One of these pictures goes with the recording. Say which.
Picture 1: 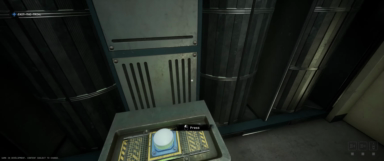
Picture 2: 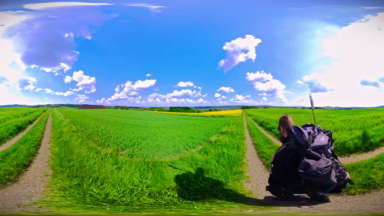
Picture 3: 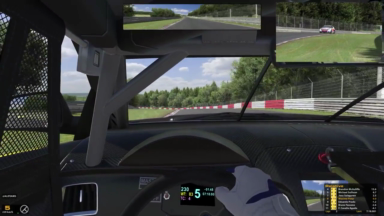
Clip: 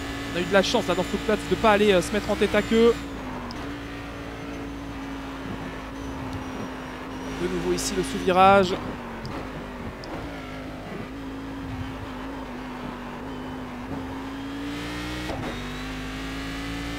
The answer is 3